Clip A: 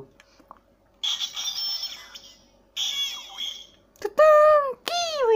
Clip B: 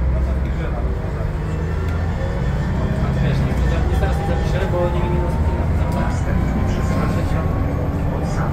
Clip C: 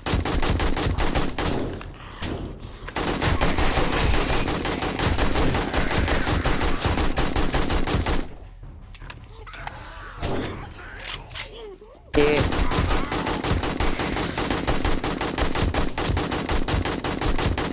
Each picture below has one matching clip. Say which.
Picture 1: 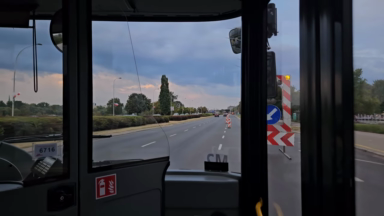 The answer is B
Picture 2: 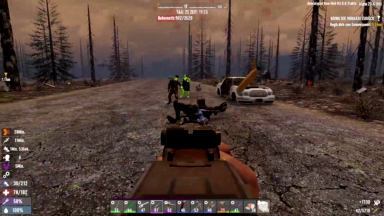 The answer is C